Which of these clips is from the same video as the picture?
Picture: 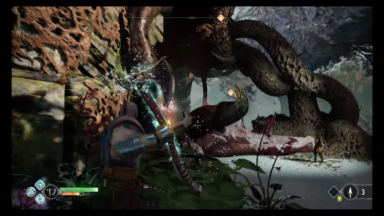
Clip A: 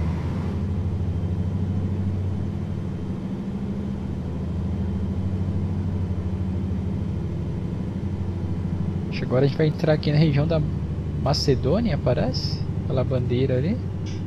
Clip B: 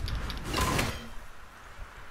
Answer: B